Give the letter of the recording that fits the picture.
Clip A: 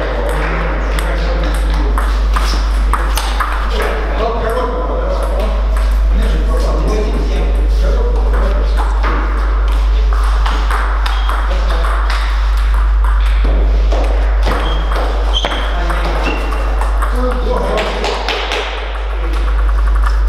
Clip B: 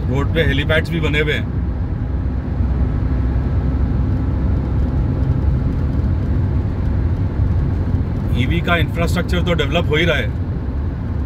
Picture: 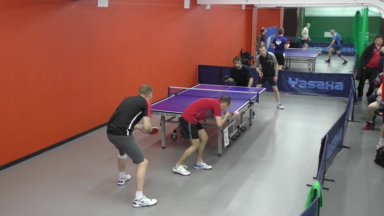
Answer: A